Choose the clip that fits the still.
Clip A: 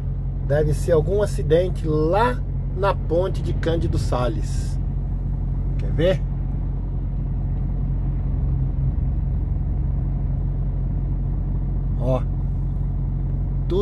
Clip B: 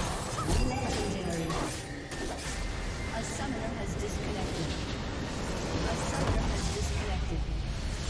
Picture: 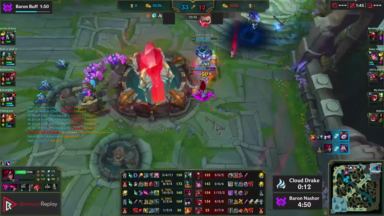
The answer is B